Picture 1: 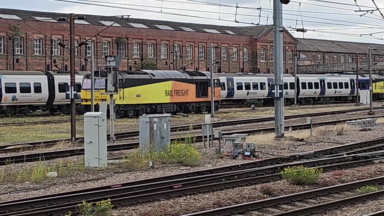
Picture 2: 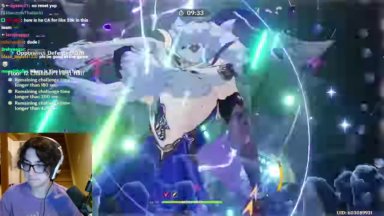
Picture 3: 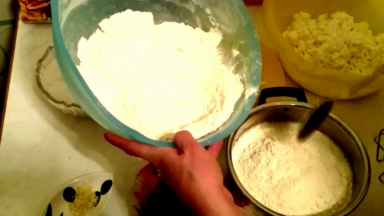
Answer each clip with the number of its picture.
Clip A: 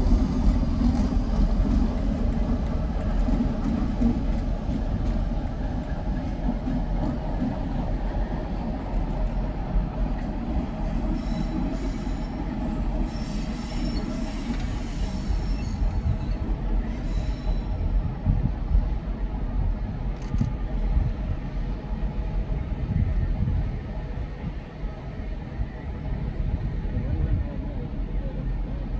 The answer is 1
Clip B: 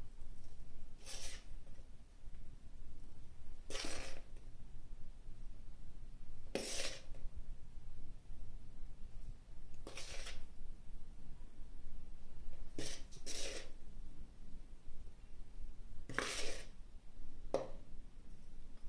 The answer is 3